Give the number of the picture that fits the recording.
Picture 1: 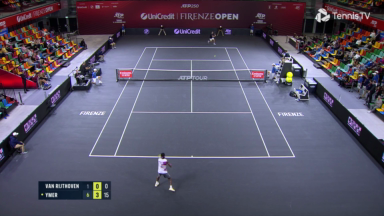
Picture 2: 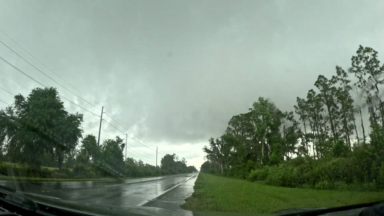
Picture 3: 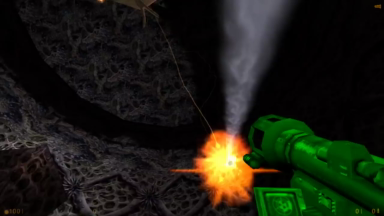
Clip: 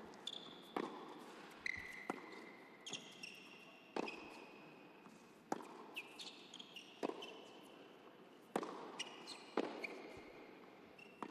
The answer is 1